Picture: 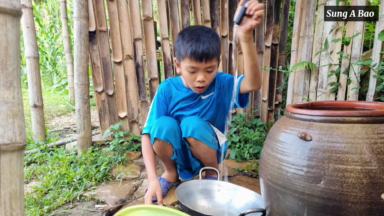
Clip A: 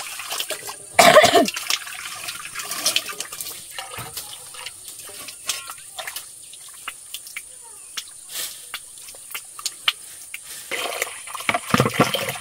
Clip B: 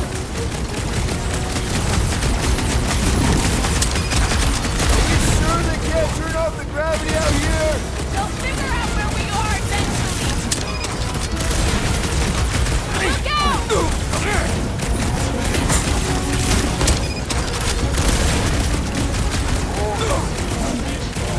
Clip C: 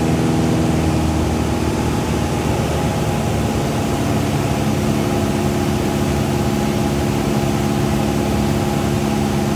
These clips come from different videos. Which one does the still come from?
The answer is A